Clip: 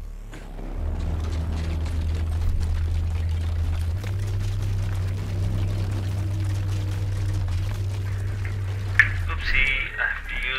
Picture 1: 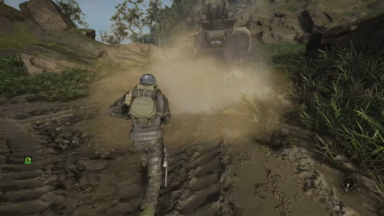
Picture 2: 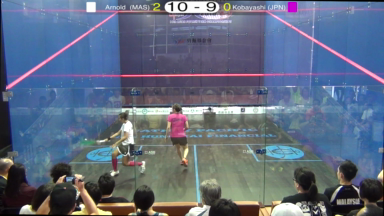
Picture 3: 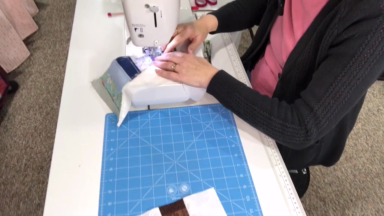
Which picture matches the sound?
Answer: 1